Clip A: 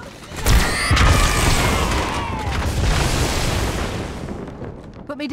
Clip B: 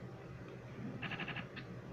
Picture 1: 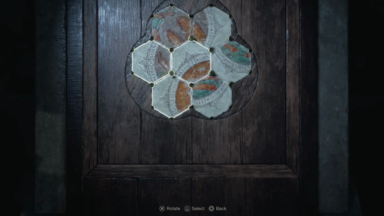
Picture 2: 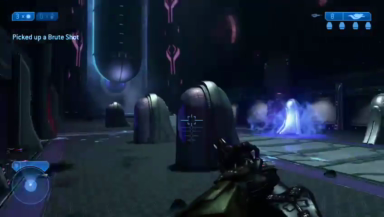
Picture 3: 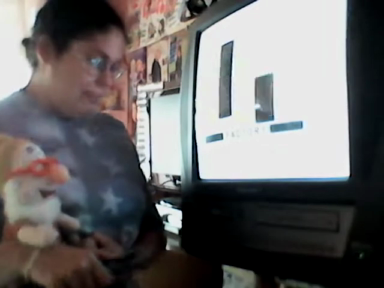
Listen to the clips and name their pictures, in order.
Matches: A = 2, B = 3